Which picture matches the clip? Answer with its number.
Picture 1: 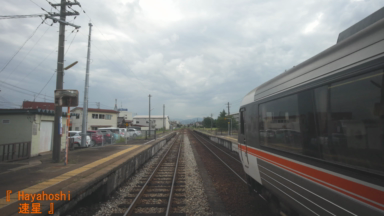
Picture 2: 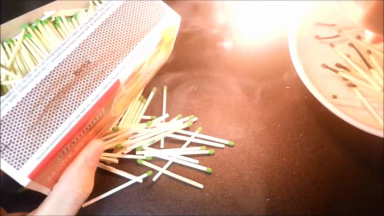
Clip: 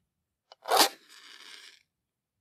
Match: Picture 2